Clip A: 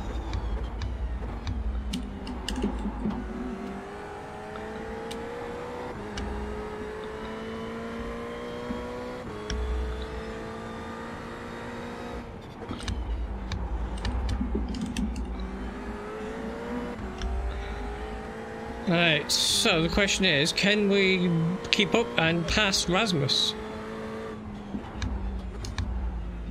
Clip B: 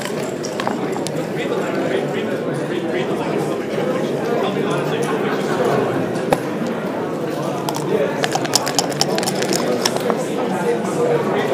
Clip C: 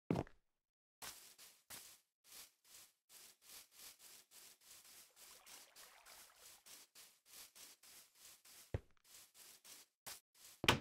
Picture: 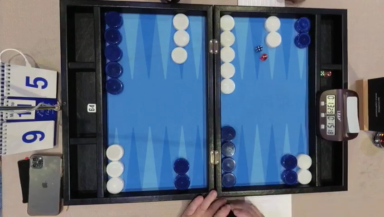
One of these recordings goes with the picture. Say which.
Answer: B